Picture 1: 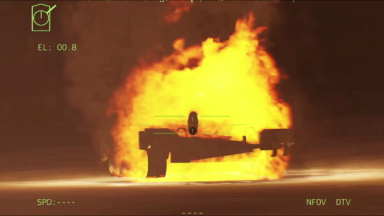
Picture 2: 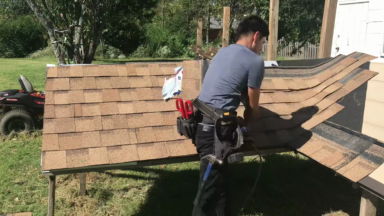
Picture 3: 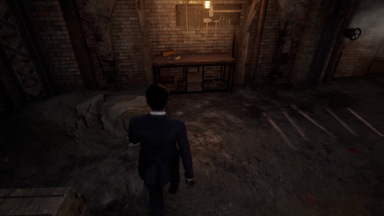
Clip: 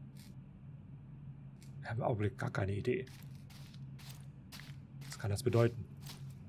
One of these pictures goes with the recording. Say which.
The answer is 3